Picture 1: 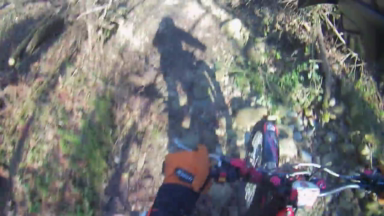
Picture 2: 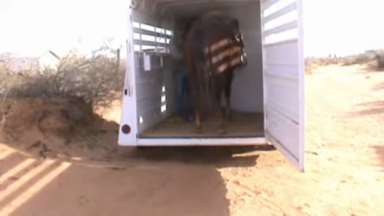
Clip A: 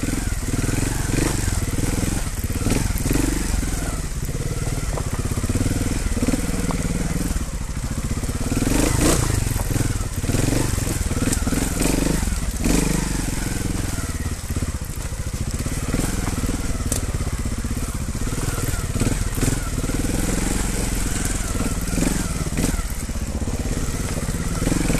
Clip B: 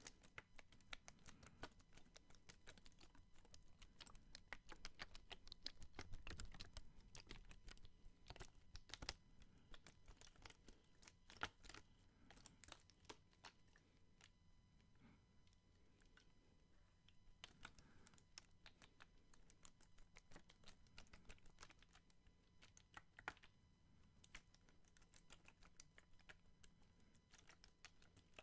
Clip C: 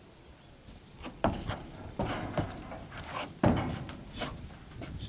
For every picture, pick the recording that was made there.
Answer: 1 A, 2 C